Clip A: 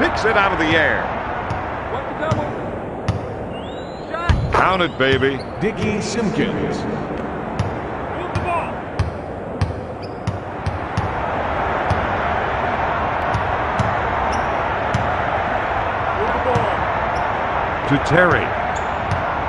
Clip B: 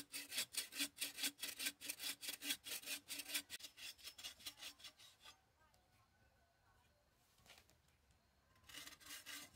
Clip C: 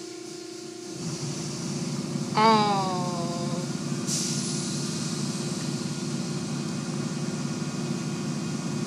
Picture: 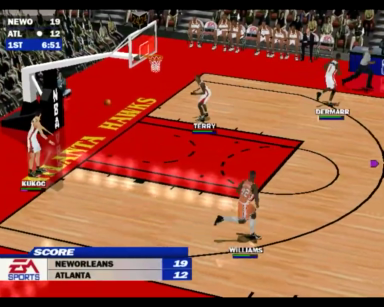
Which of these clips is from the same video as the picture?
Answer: A